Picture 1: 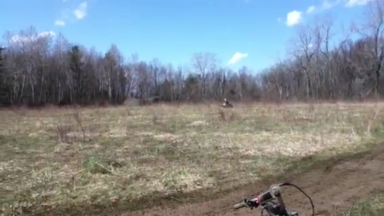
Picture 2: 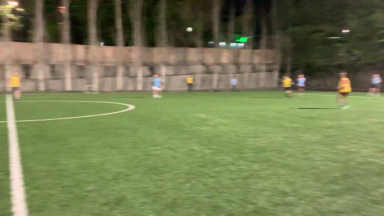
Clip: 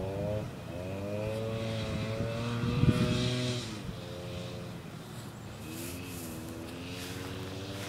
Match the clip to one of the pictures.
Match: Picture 1